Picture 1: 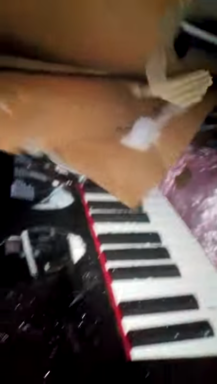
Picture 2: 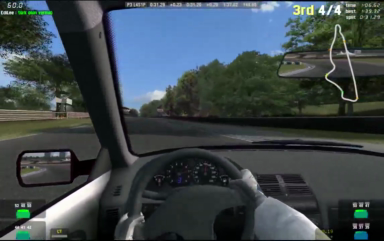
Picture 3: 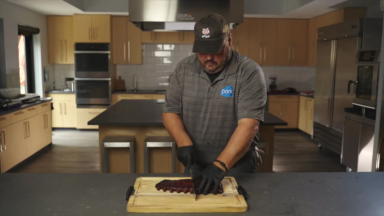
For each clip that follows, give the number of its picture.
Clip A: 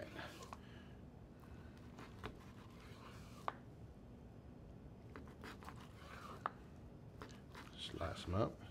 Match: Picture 3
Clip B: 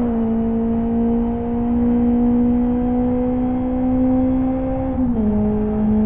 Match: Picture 2